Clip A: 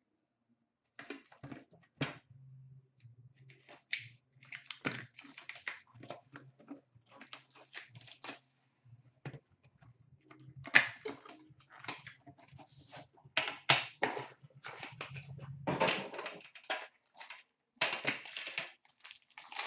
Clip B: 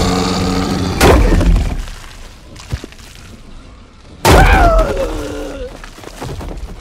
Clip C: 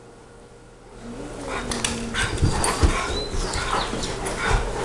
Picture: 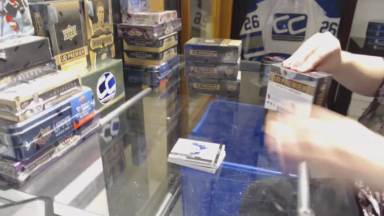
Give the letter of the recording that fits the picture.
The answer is A